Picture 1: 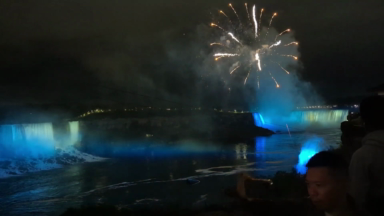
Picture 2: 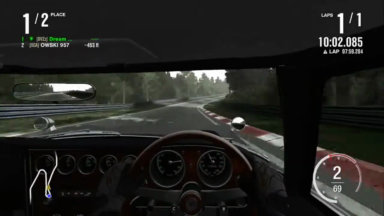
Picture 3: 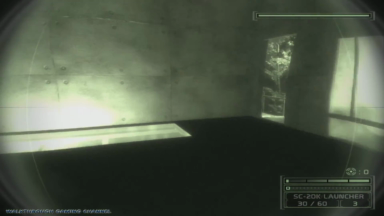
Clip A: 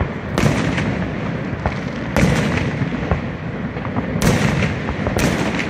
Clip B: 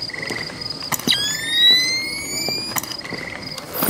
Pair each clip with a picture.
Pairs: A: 1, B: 3